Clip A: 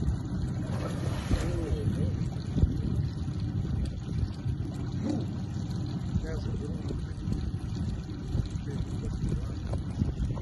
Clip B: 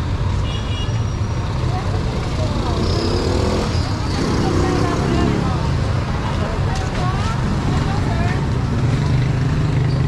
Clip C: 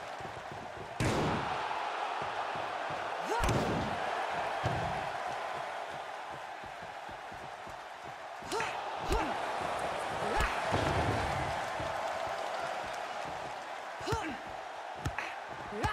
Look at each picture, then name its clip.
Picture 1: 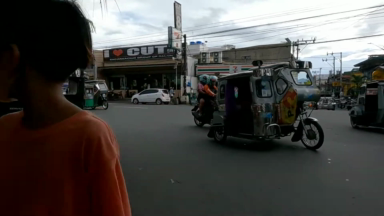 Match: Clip B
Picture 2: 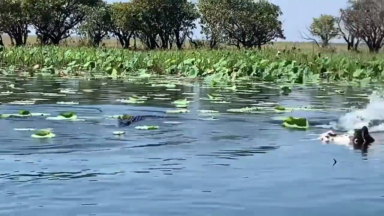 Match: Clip A